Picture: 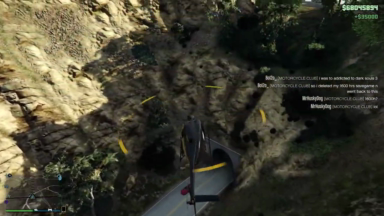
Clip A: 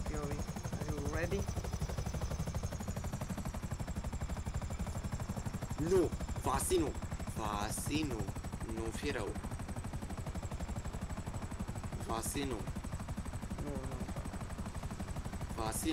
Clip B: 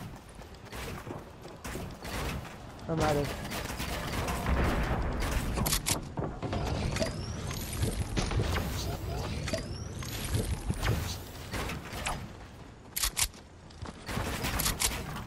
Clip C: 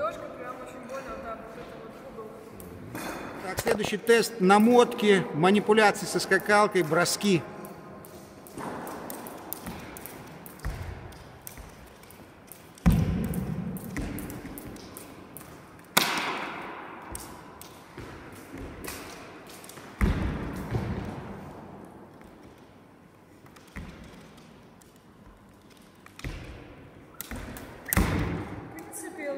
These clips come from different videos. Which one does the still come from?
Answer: A